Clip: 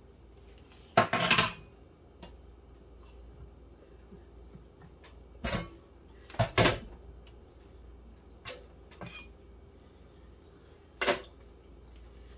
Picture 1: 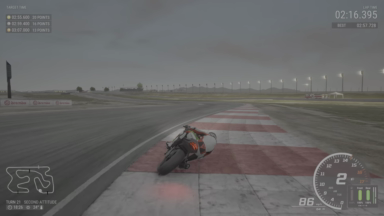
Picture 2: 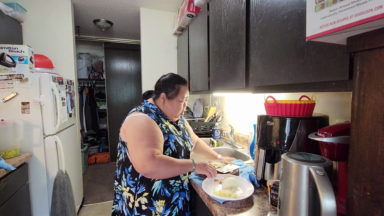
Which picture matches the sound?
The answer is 2